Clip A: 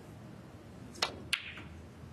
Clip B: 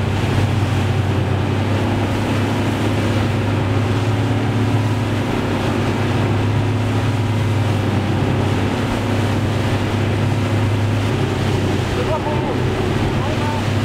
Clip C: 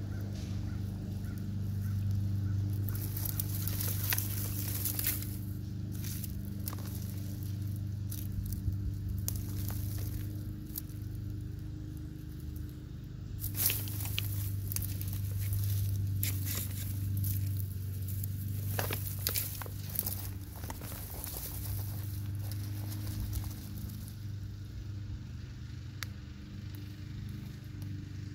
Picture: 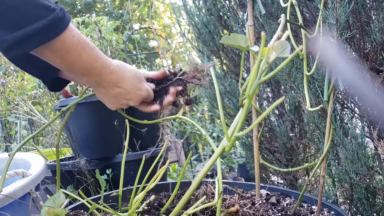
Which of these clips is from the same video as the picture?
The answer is C